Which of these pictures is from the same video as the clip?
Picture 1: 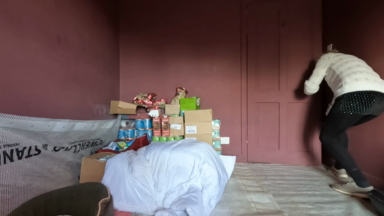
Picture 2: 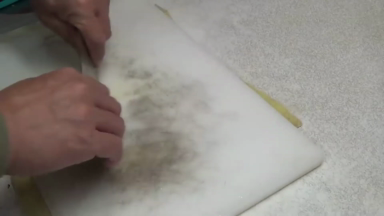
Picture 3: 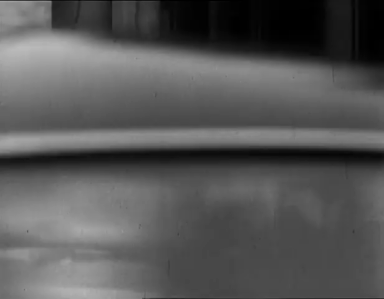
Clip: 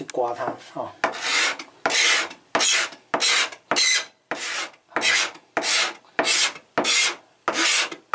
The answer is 2